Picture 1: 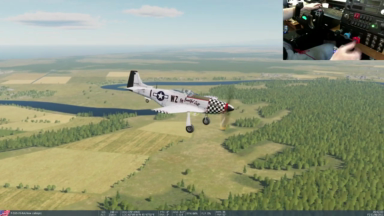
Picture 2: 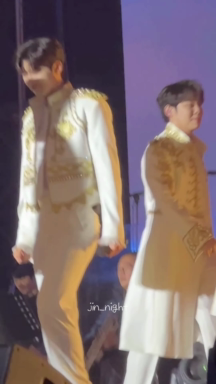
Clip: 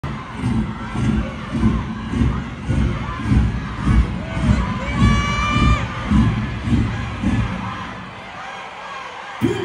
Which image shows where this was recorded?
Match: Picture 2